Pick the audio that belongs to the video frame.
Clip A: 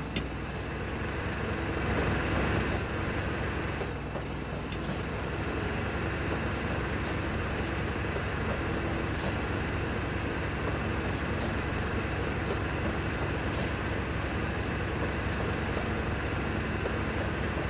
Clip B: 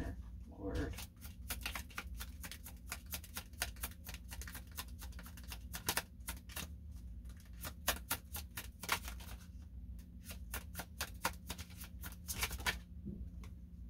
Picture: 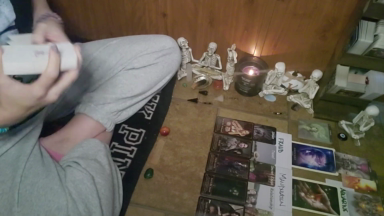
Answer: B